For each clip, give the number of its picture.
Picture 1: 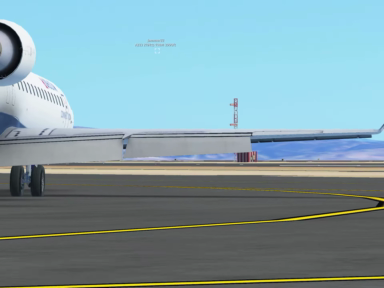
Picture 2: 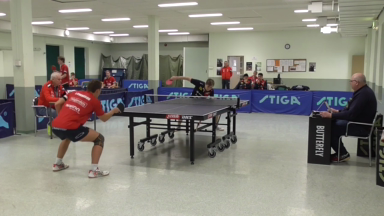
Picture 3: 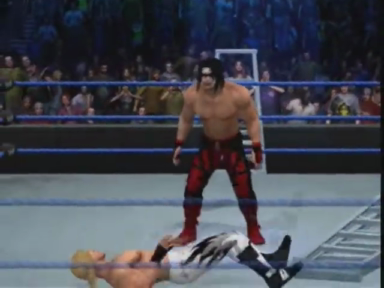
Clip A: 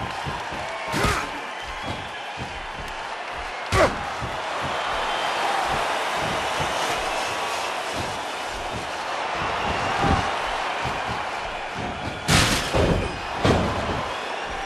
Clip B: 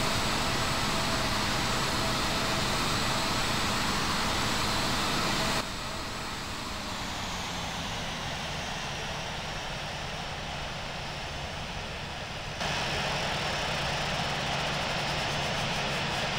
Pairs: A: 3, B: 1